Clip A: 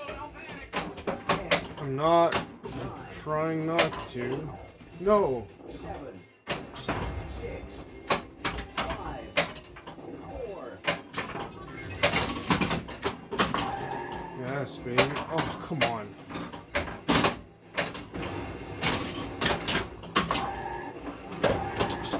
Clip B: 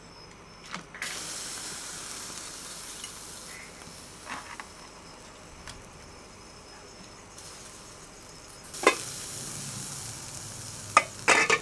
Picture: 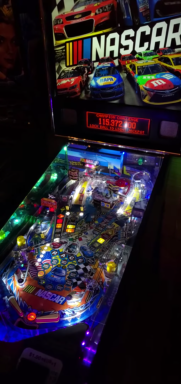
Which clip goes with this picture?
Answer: A